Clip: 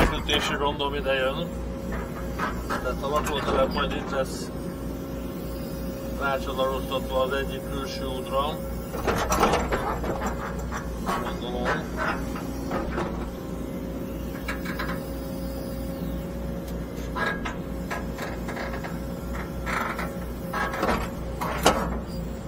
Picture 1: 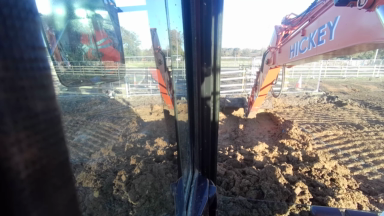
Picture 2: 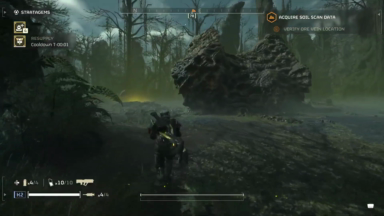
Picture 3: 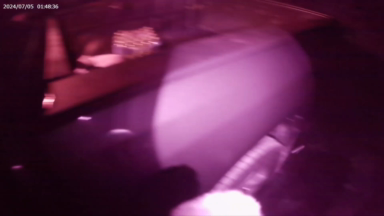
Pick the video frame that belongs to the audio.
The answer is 1